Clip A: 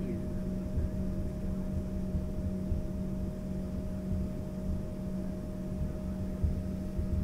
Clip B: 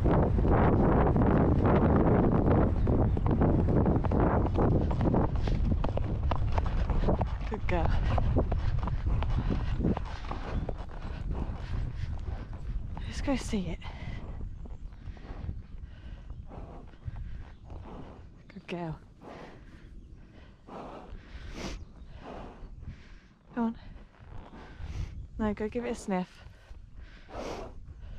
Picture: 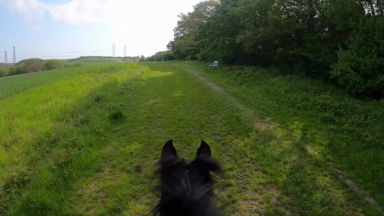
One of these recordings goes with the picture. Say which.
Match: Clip B